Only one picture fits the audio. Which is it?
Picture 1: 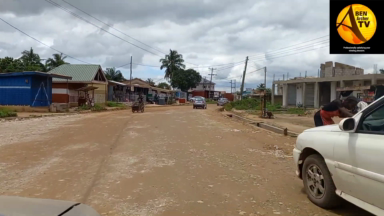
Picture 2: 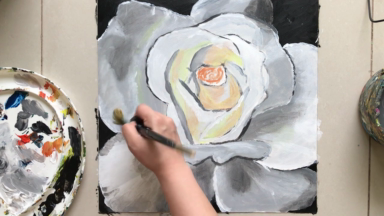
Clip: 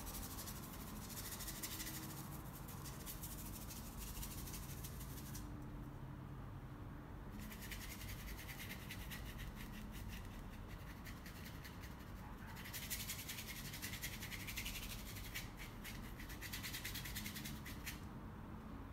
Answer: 2